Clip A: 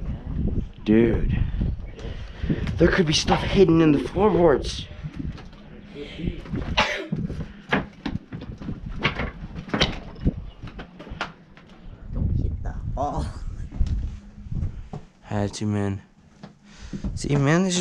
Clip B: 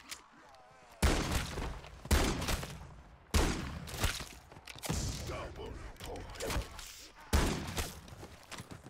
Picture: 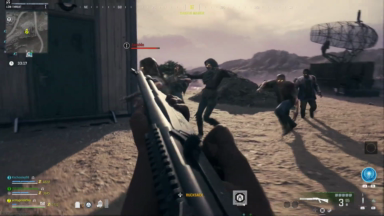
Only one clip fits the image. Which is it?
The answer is B